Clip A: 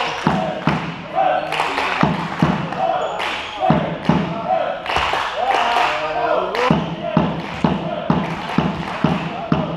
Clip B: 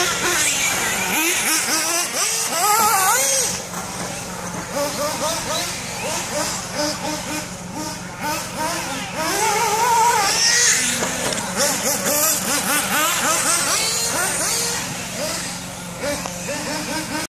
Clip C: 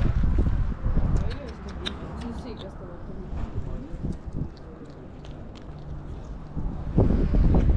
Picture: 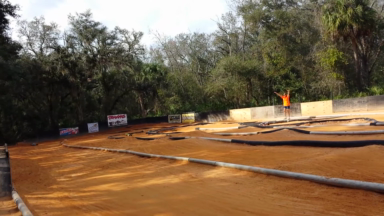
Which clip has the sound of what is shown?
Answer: B